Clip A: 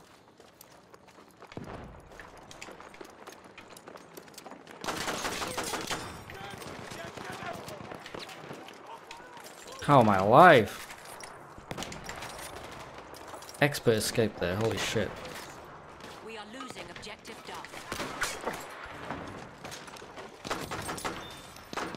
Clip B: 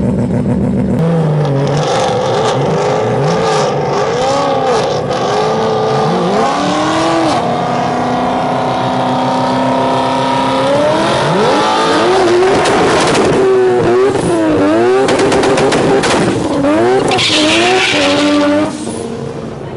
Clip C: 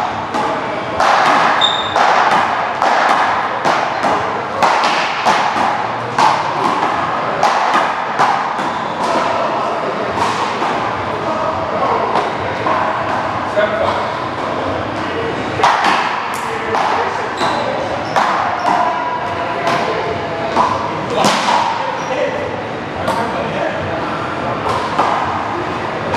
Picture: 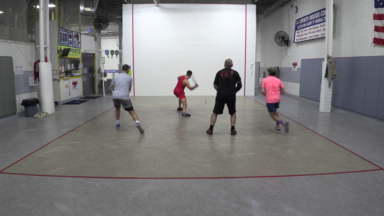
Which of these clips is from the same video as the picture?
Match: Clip C